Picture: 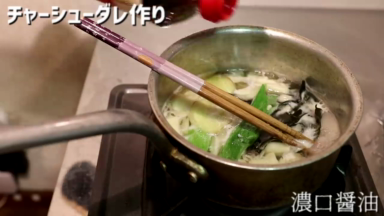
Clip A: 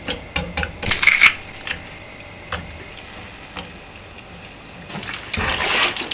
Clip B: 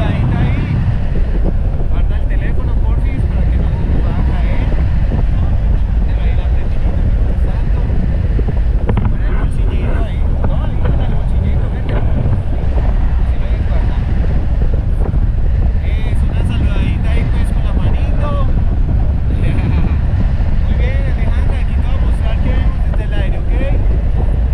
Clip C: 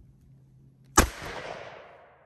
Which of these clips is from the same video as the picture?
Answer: A